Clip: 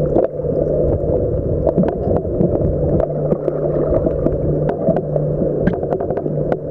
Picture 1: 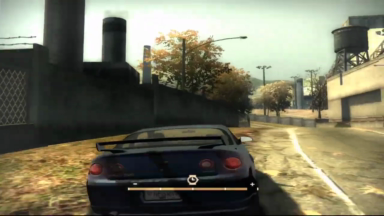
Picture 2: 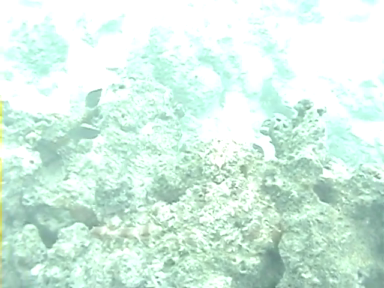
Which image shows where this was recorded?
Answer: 2